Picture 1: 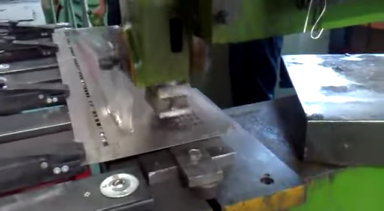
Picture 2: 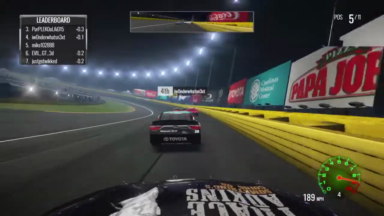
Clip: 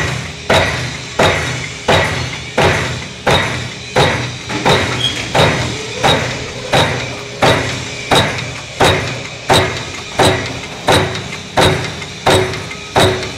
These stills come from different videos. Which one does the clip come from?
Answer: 1